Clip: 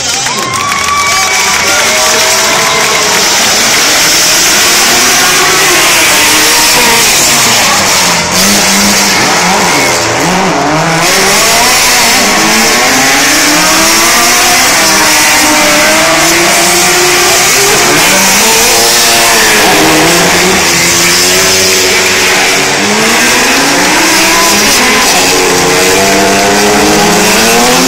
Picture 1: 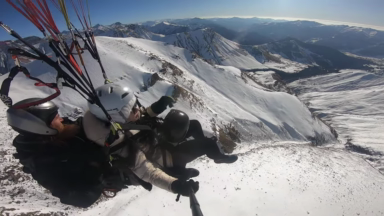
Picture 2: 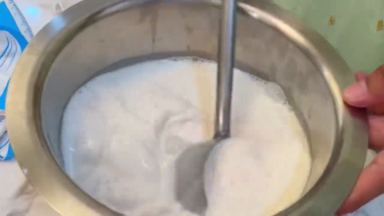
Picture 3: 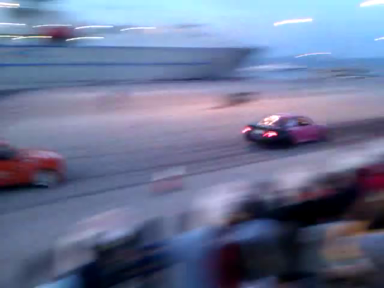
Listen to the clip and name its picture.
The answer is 3